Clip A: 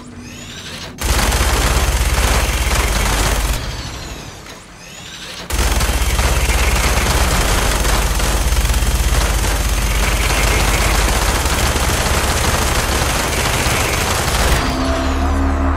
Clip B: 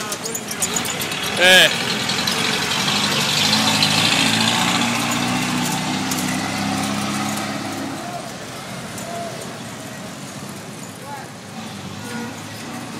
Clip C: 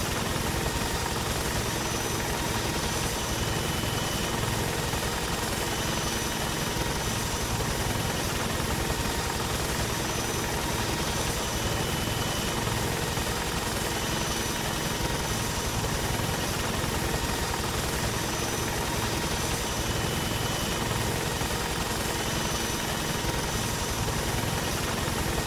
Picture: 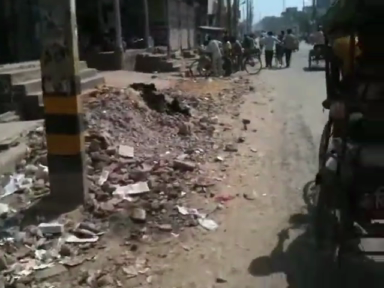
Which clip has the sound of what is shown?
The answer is B